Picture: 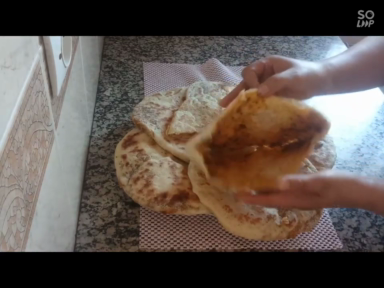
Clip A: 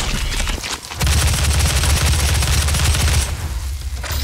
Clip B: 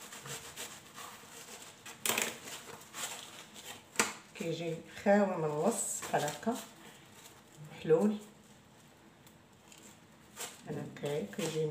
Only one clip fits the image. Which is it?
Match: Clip B